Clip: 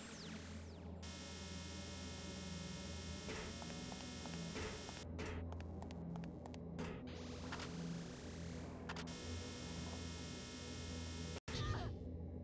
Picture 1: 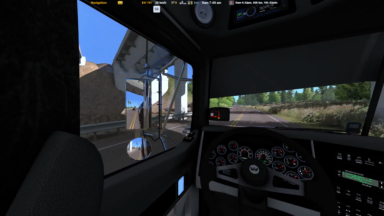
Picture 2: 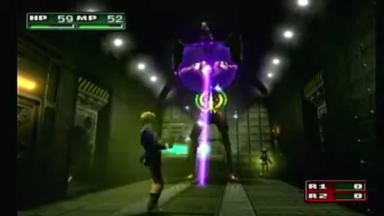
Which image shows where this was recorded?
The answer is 2